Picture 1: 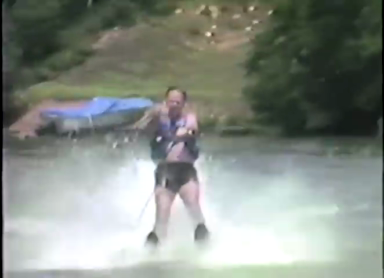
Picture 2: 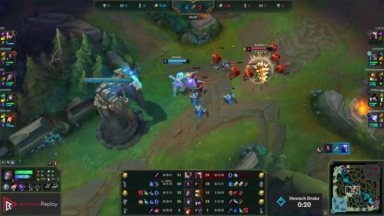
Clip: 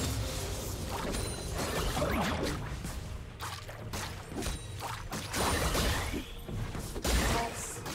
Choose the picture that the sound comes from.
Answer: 2